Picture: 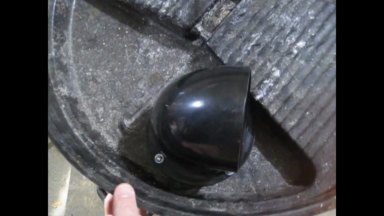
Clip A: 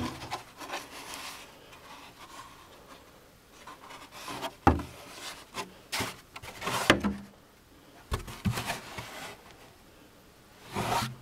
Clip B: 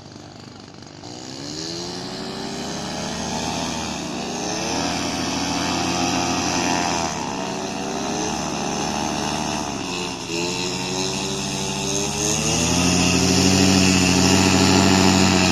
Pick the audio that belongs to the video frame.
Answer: A